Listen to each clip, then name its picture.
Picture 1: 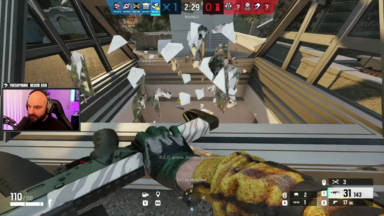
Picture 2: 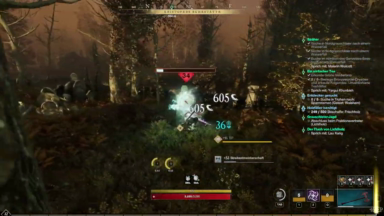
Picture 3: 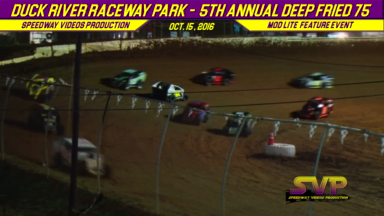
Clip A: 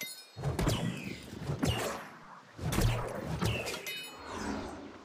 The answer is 2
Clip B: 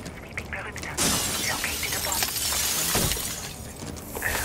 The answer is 1